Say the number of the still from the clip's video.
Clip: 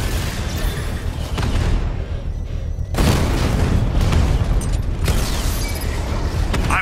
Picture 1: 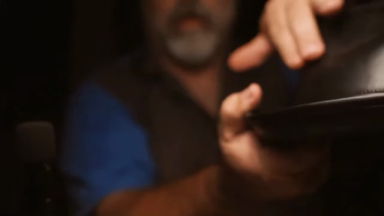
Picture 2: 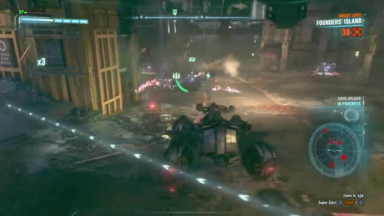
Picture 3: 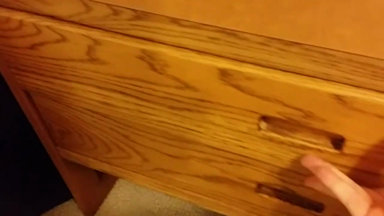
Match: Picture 2